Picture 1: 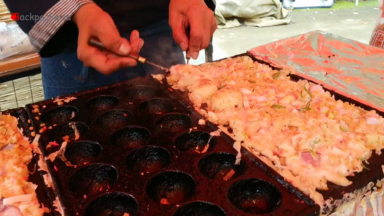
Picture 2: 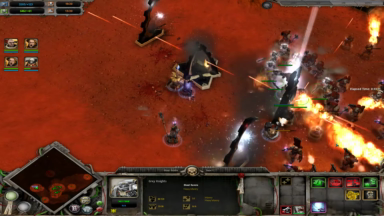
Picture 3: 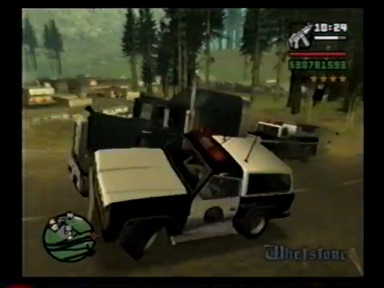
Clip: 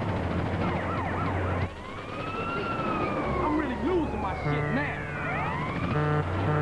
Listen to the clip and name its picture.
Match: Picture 3